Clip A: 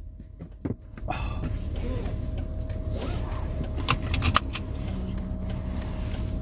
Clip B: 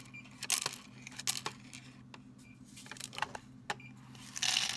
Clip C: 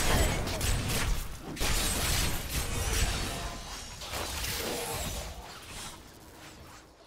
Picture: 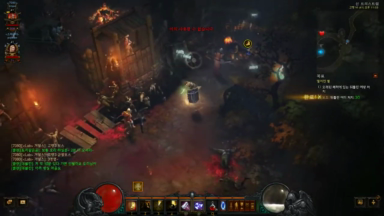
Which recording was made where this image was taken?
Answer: C